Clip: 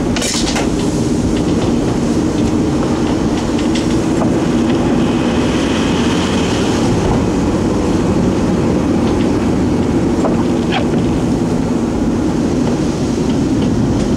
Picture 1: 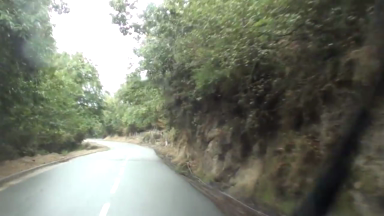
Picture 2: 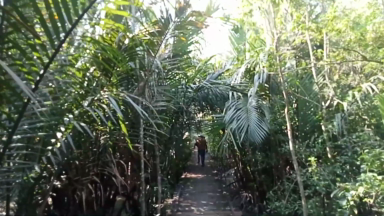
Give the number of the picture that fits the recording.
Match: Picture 1